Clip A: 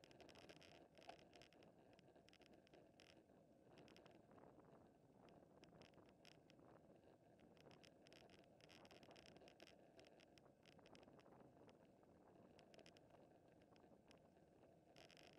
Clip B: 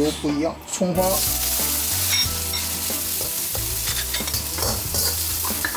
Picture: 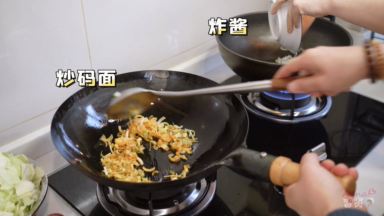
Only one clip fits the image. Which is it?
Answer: B